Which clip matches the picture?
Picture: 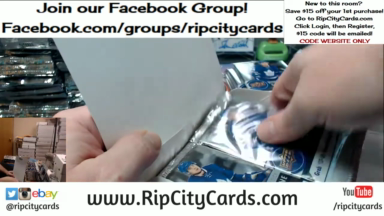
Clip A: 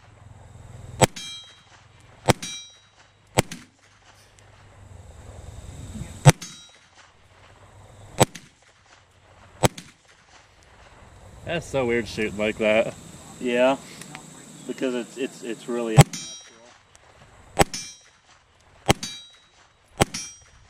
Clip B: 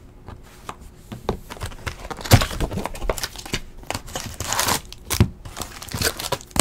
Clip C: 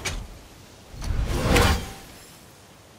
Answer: B